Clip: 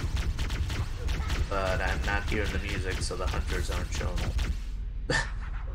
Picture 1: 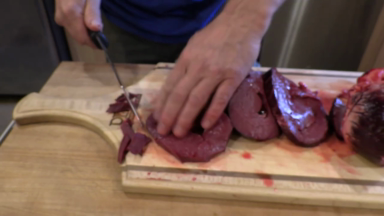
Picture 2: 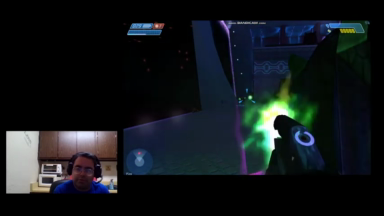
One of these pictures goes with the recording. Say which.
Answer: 2